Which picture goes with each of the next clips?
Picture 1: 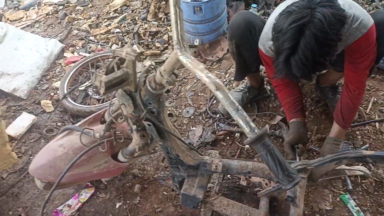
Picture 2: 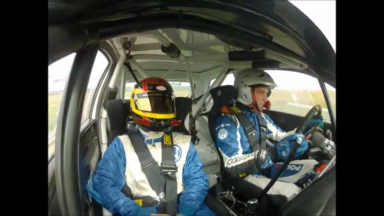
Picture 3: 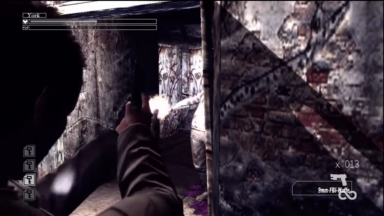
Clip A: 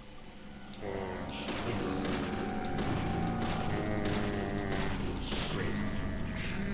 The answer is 3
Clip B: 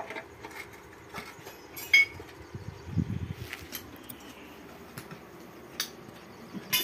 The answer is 1